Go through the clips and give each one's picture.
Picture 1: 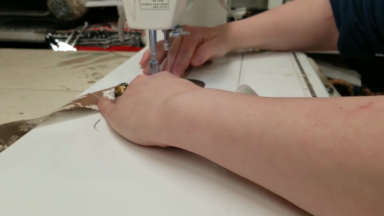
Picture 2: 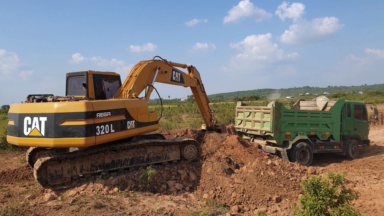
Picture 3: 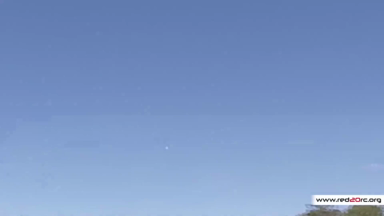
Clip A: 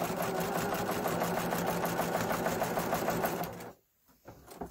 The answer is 1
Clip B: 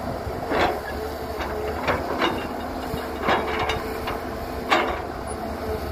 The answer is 2